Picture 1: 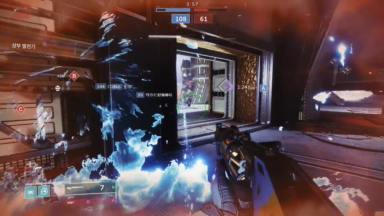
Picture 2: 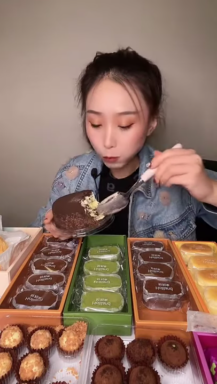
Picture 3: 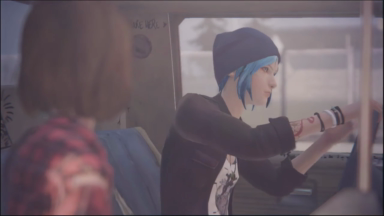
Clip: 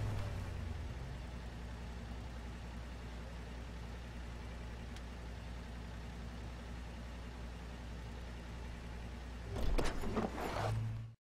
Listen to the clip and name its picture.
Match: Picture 3